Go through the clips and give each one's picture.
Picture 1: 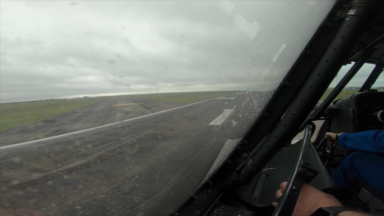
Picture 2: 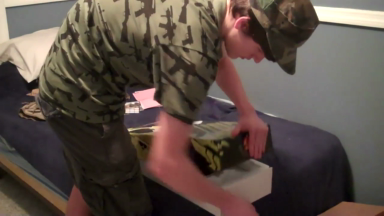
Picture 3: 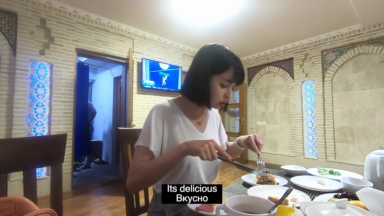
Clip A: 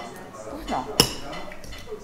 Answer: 3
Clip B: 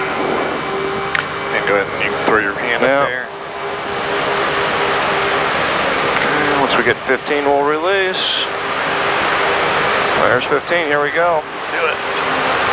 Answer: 1